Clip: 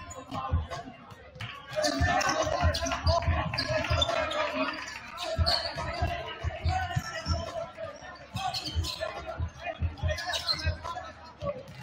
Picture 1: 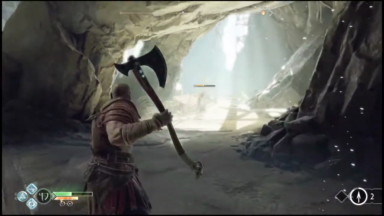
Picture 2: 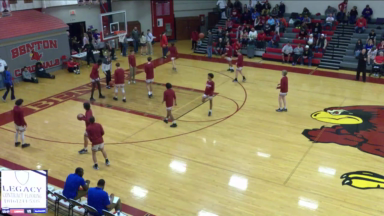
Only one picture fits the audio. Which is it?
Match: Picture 2